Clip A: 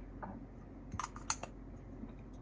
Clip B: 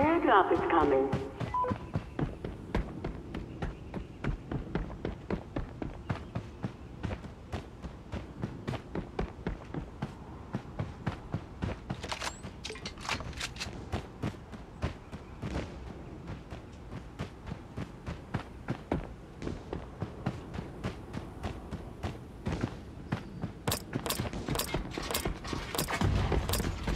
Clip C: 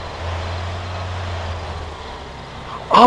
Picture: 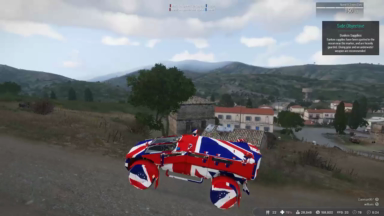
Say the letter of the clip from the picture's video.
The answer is C